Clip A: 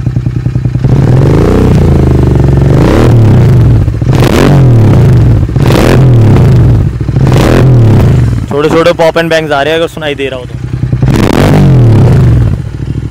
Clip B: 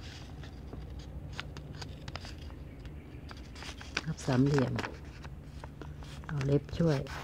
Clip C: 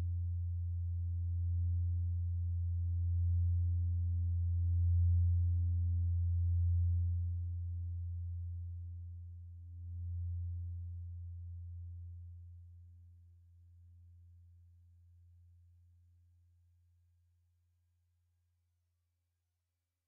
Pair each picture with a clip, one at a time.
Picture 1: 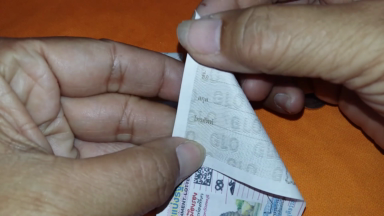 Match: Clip B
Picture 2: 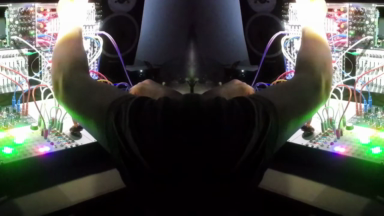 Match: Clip C